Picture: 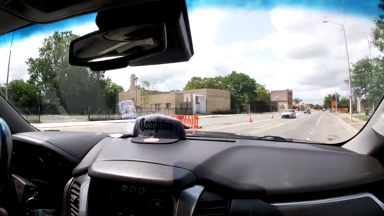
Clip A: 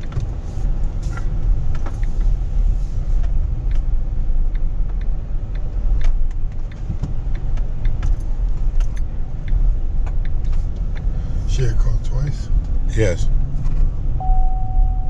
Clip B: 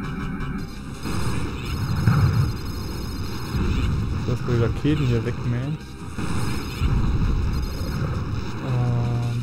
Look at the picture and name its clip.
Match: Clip A